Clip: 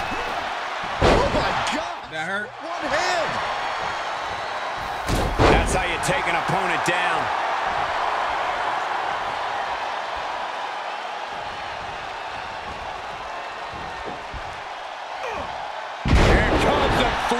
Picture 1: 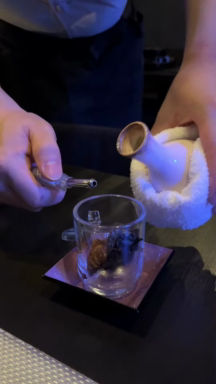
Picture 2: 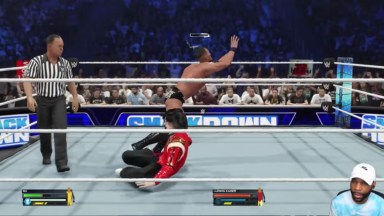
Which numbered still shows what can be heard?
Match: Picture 2